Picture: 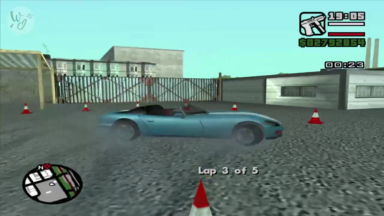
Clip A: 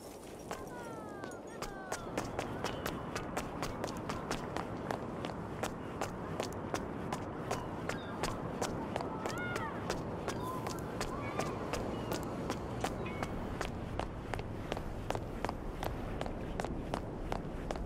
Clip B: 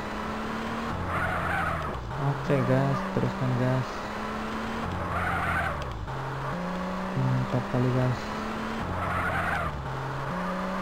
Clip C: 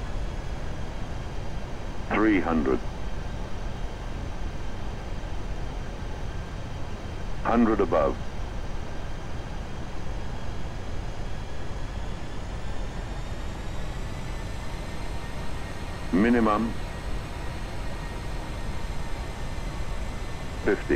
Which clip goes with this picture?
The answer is B